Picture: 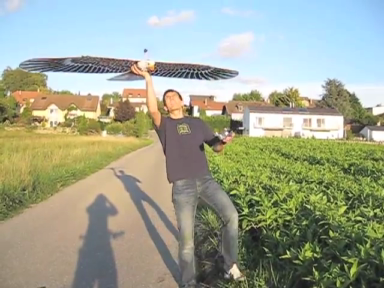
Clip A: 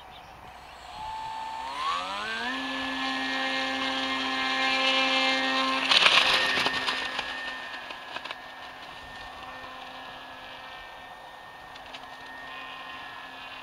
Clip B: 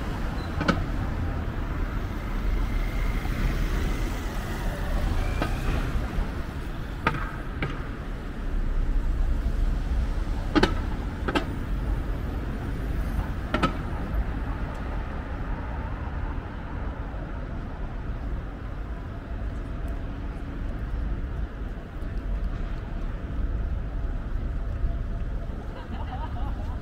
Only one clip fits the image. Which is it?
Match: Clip A